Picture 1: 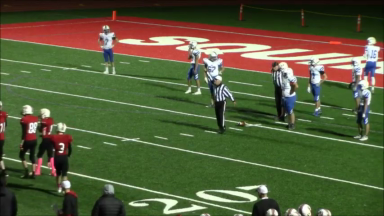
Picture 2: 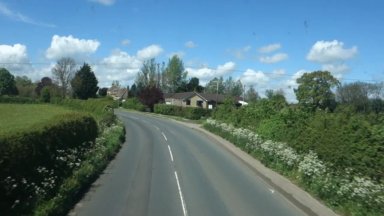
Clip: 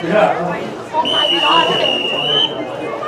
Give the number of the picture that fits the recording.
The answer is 1